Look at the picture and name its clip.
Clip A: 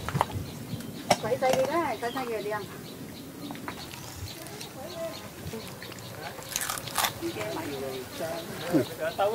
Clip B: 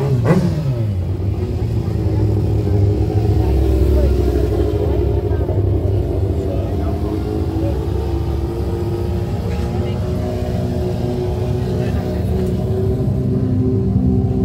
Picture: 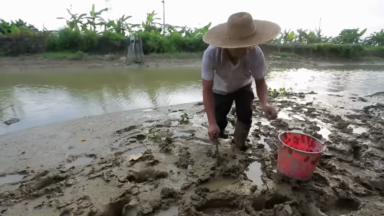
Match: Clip A